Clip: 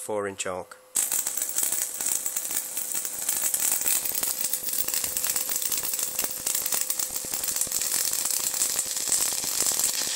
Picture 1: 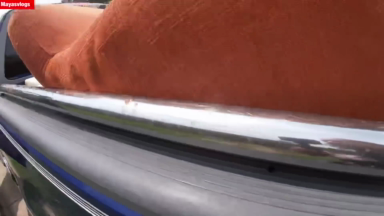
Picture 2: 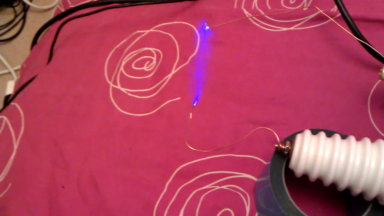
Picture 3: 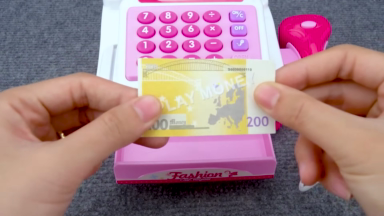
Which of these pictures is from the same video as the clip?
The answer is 2